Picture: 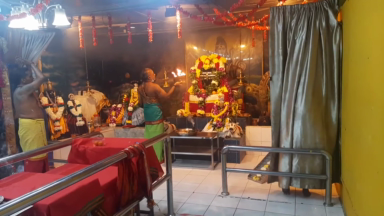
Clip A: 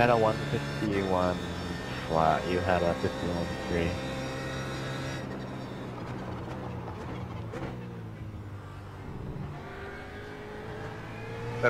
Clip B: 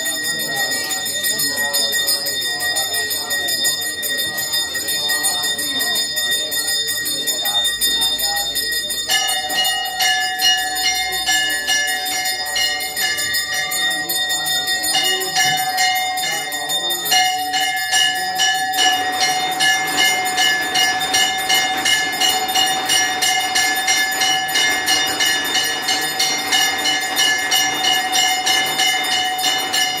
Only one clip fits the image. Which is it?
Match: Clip B